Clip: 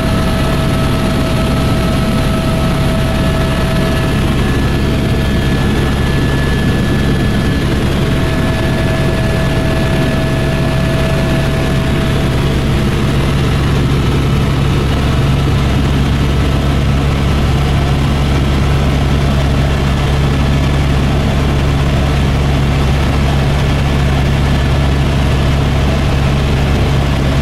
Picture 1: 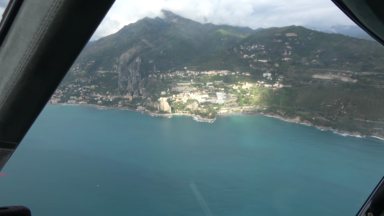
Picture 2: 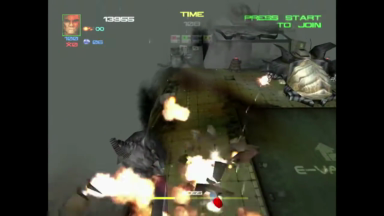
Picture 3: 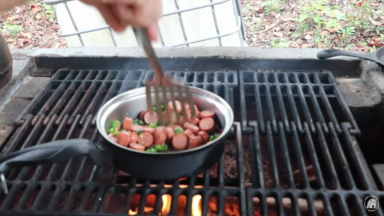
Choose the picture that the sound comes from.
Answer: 1